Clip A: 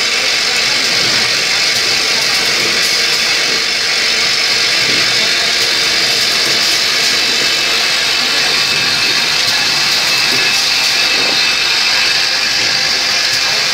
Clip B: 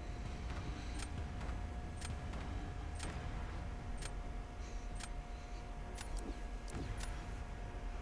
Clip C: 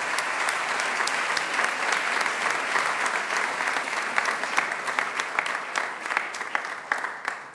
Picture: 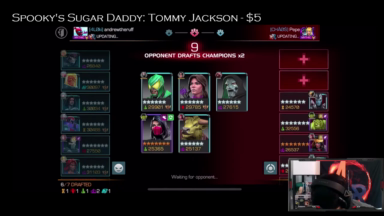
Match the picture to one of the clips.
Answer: B